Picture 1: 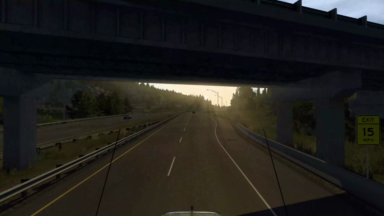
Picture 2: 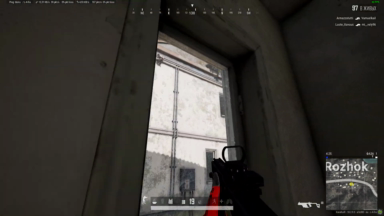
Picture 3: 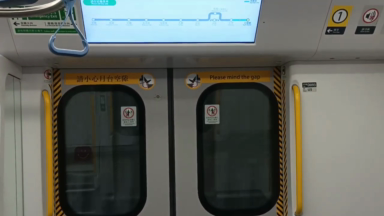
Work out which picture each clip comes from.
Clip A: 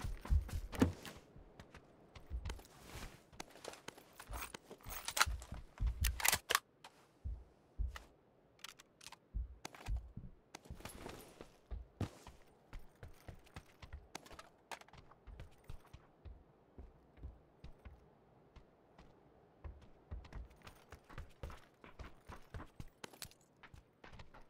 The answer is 2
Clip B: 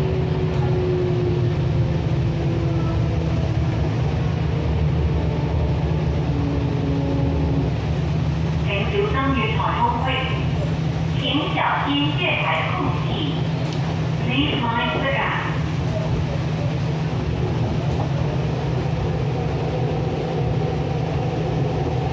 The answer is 3